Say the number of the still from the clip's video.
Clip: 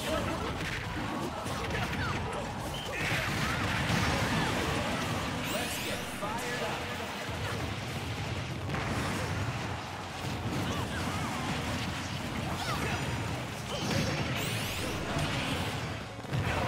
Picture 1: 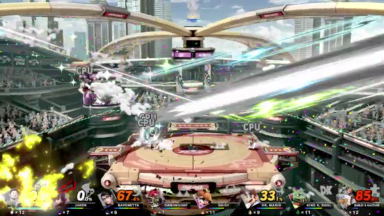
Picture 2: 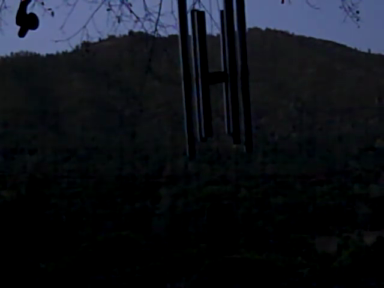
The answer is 1